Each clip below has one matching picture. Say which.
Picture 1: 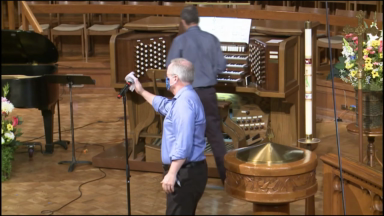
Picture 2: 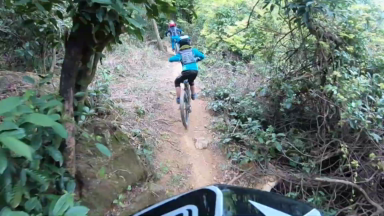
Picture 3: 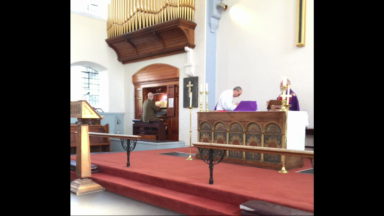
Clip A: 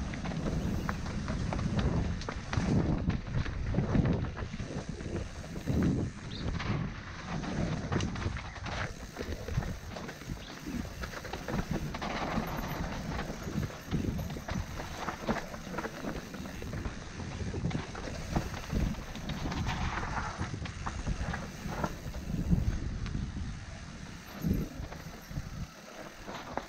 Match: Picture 2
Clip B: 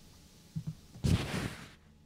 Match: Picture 1